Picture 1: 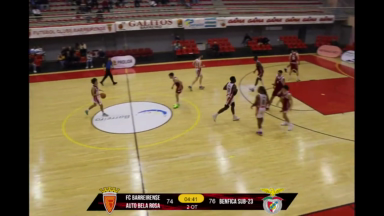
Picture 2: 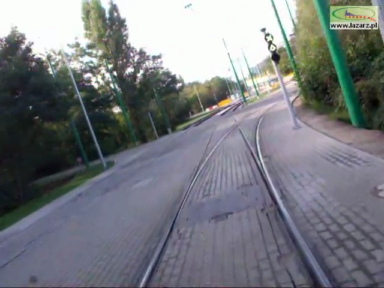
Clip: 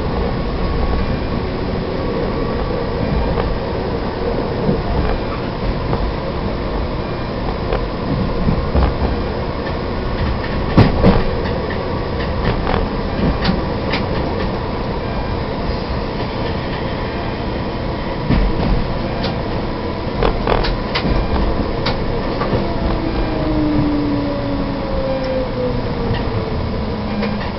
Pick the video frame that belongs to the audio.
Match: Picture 2